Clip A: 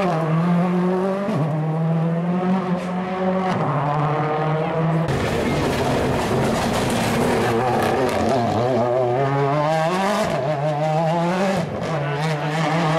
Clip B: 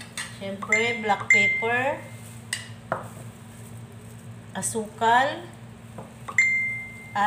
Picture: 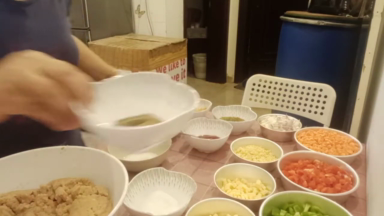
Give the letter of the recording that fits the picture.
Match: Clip B